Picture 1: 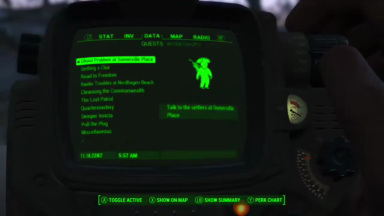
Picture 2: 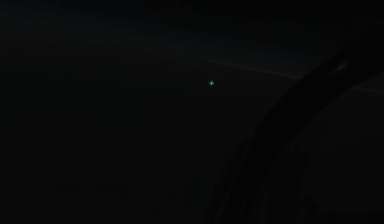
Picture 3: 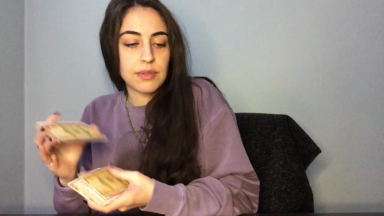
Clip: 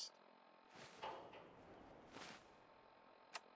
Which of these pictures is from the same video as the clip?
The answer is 1